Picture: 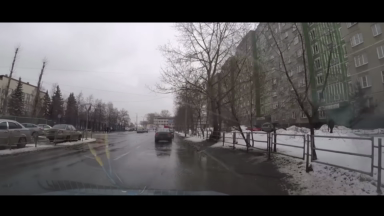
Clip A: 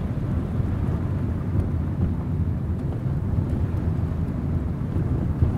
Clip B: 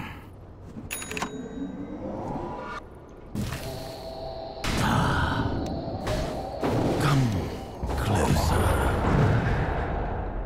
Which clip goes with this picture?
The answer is A